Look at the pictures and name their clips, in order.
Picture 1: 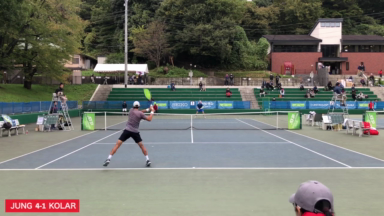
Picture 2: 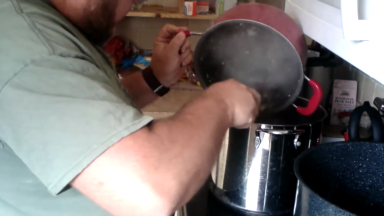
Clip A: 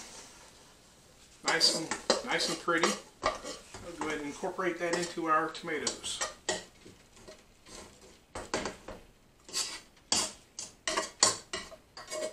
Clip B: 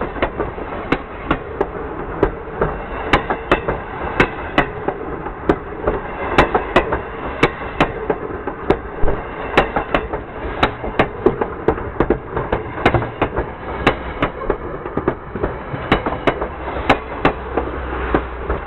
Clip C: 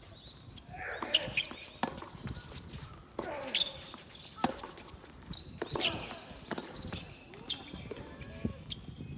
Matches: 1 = C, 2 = A